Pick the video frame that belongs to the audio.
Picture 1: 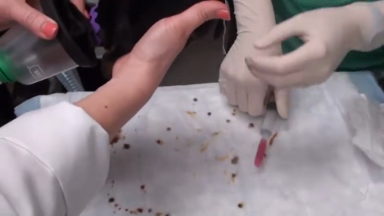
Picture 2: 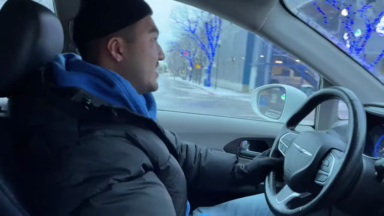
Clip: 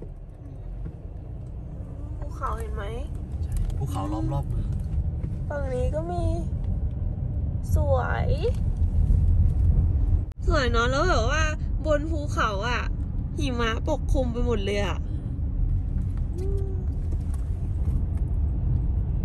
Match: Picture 2